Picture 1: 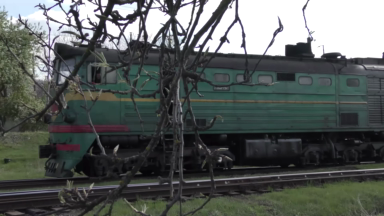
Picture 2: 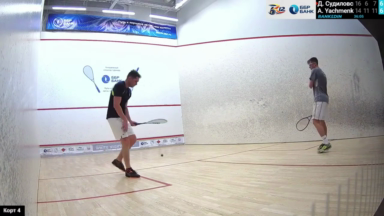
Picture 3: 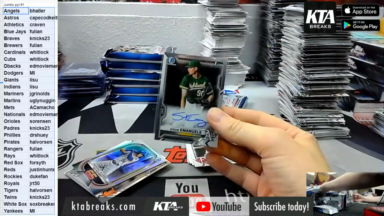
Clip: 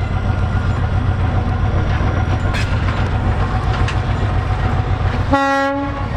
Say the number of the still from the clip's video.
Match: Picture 1